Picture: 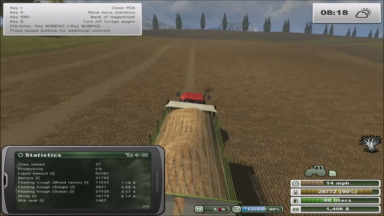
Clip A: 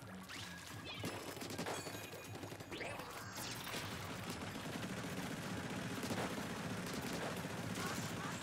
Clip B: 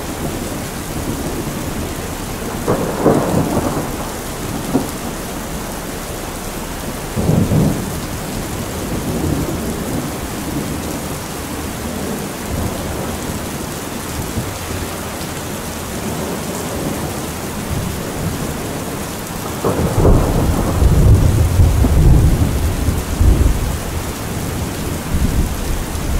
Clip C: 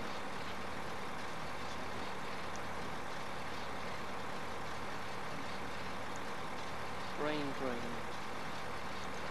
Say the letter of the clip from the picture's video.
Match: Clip C